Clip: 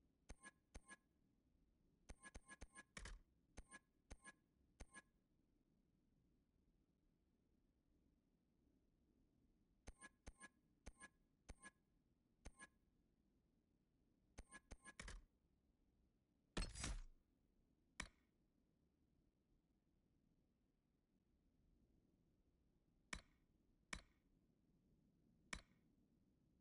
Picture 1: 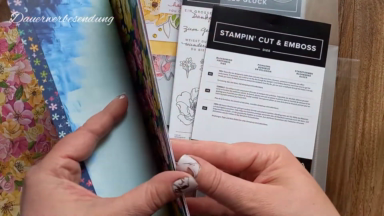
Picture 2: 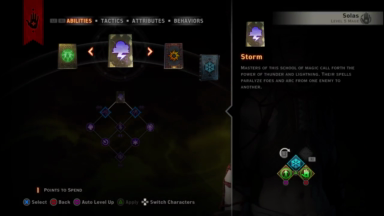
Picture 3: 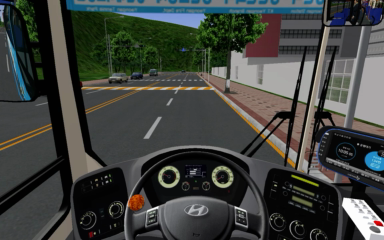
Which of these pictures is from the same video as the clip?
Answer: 2